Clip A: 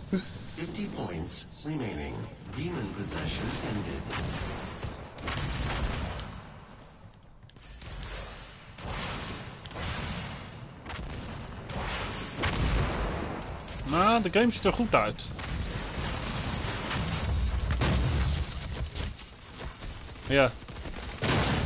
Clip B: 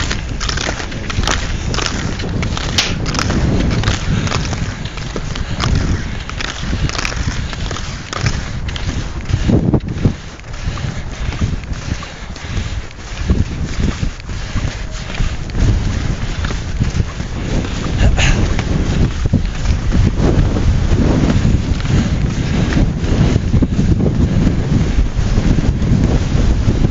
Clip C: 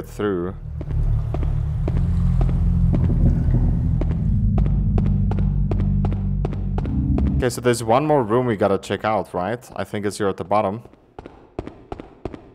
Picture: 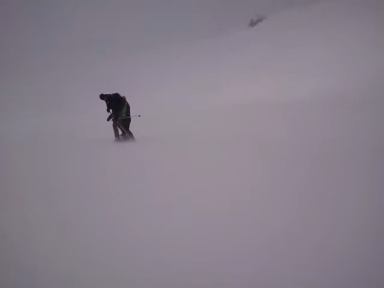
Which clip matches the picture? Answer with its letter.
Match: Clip B